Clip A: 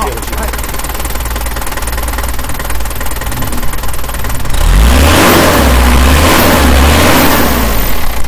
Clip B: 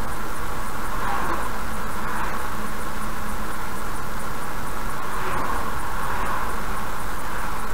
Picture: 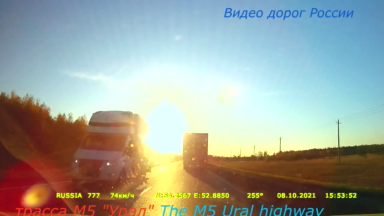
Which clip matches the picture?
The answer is B